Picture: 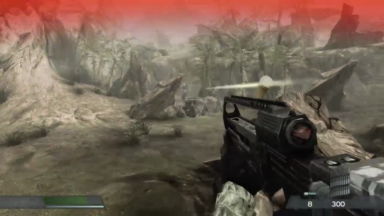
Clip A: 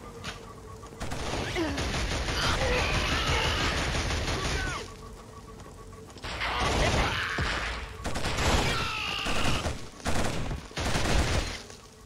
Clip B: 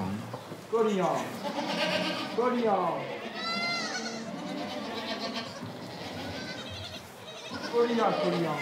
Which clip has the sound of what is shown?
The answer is A